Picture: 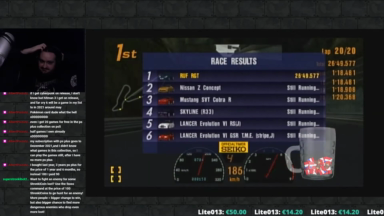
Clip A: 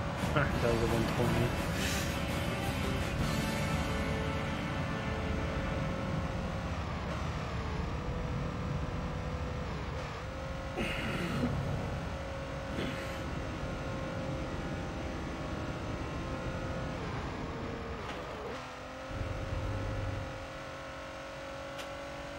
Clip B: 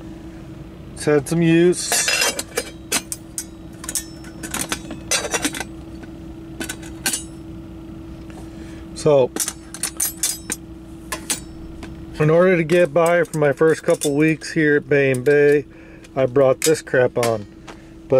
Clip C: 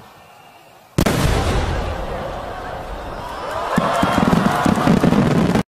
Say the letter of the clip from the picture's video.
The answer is A